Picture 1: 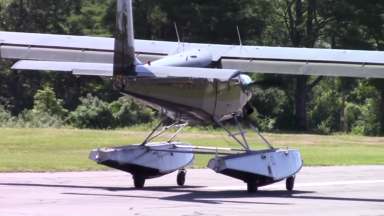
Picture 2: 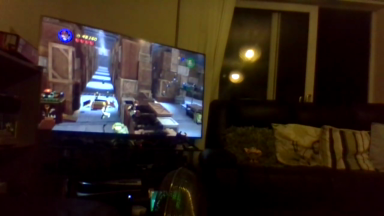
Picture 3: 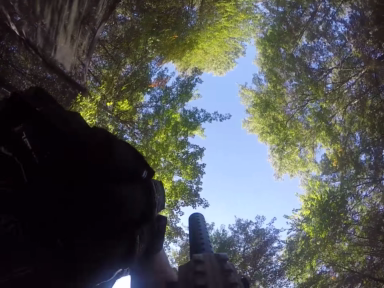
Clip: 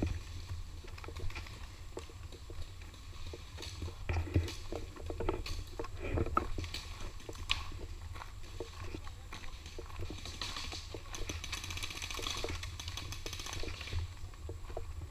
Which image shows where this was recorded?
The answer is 3